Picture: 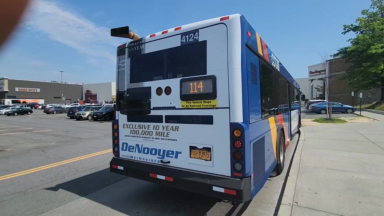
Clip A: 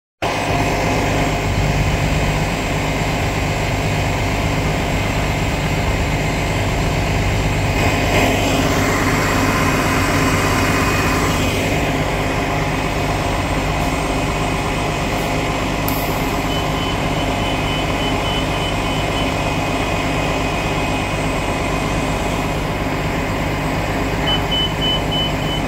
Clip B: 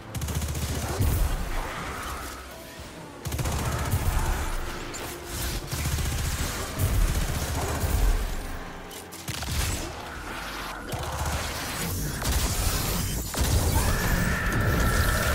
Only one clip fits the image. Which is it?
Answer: A